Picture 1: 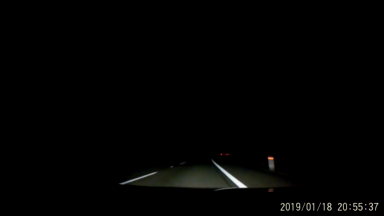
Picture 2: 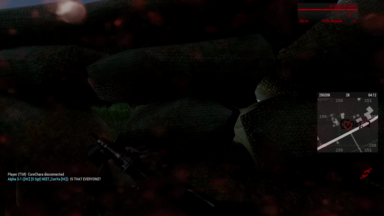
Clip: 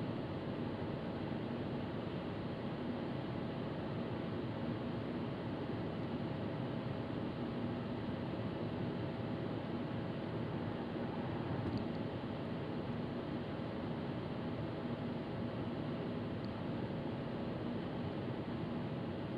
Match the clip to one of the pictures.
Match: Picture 1